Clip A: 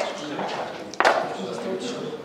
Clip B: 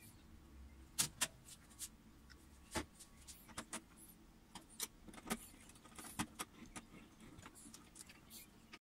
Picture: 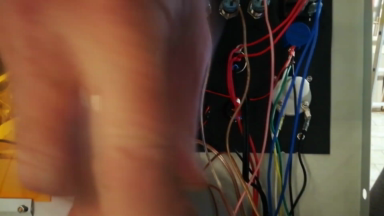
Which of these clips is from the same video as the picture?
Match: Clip B